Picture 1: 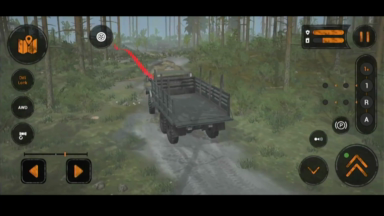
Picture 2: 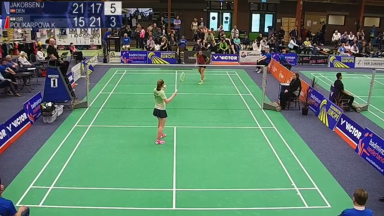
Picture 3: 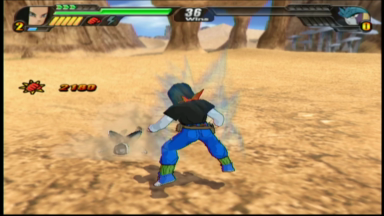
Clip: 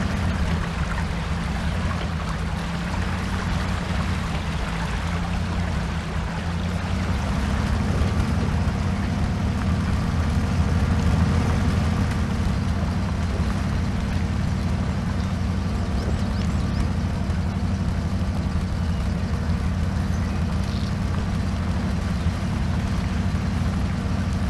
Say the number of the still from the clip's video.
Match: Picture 1